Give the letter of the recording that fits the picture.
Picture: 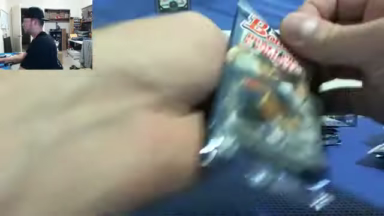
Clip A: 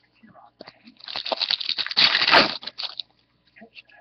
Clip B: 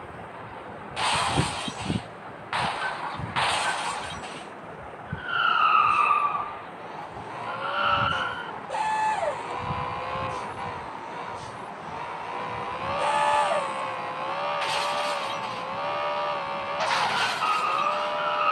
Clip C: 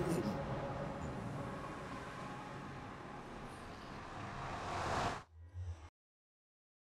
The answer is A